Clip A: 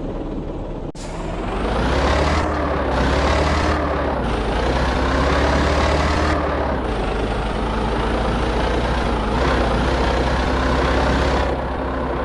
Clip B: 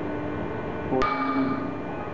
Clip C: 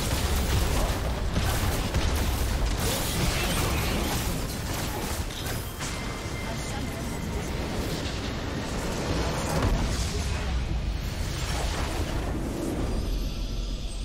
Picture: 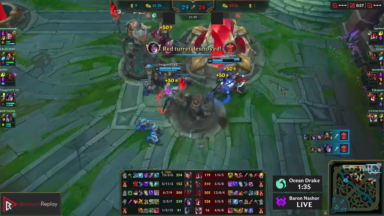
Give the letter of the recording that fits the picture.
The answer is C